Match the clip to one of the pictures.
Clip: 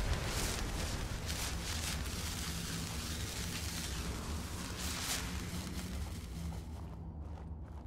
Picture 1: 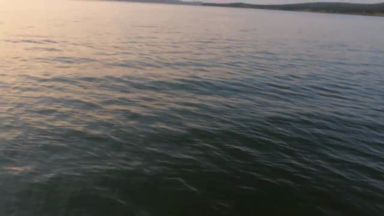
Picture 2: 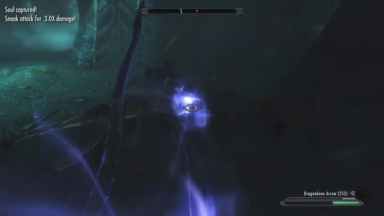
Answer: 2